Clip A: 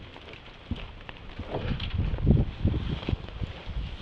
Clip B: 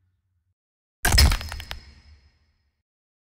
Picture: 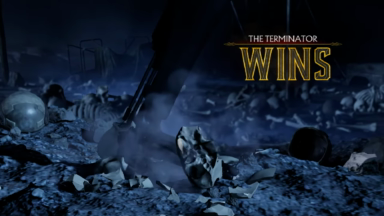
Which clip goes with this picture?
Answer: B